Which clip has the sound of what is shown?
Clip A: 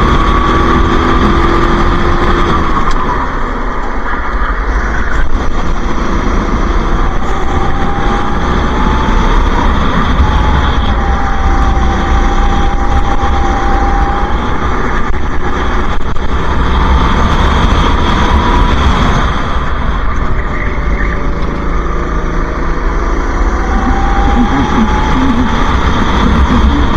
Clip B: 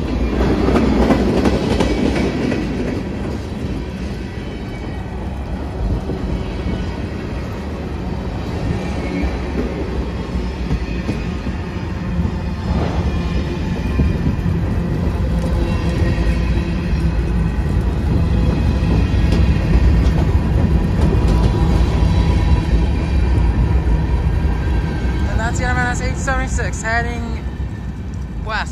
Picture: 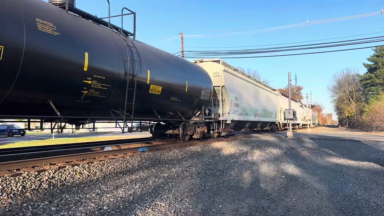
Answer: B